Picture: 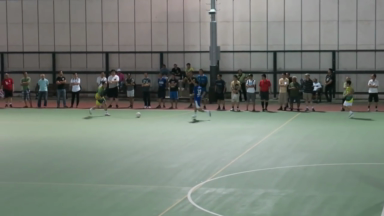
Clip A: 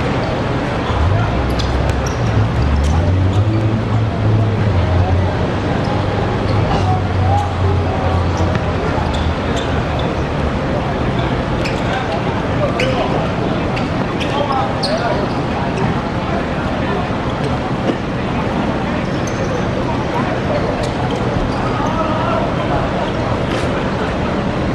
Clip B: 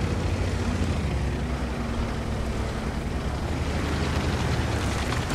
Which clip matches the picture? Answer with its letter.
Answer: A